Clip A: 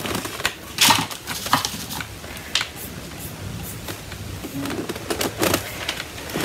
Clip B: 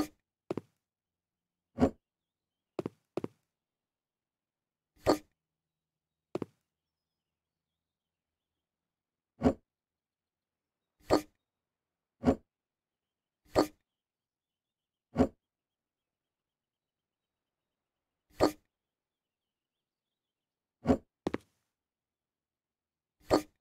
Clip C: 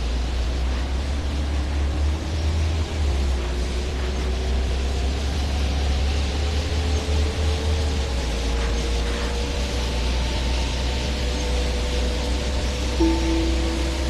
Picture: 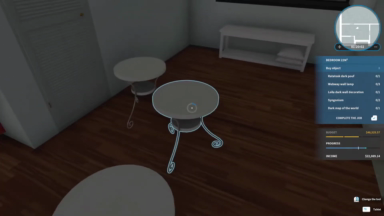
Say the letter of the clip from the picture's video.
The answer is B